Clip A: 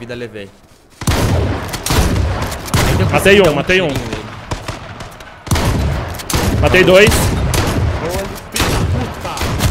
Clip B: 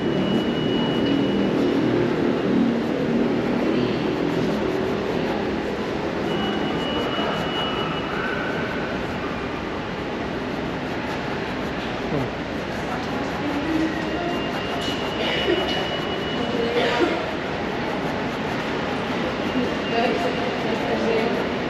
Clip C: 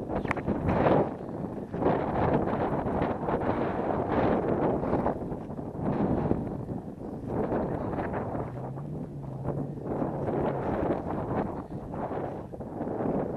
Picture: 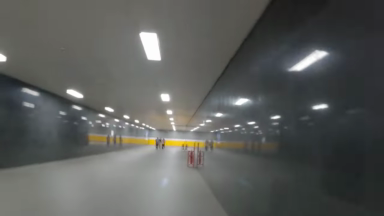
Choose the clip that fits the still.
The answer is B